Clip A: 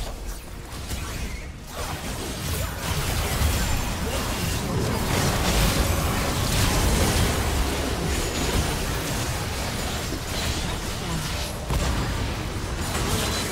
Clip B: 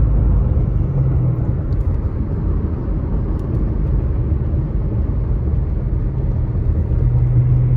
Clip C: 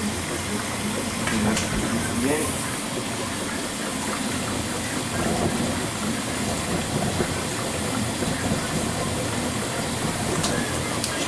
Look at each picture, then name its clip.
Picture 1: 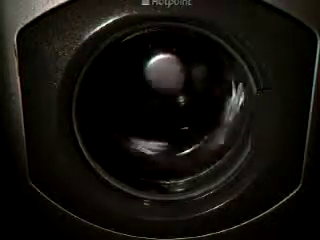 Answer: C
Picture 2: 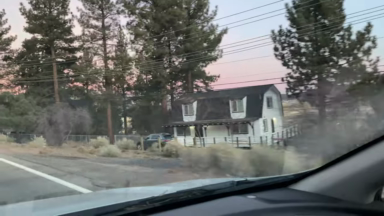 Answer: B